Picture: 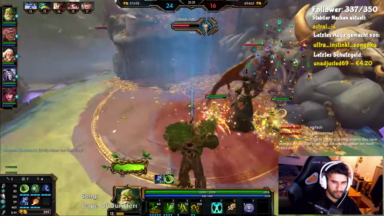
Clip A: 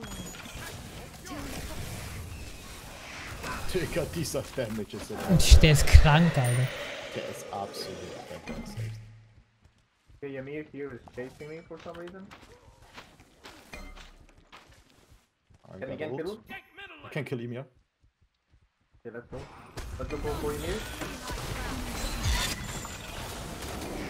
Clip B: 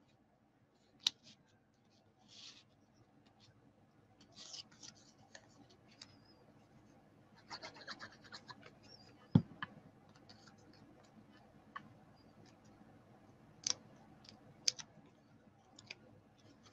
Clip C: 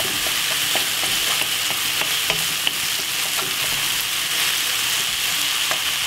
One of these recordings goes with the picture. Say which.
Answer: A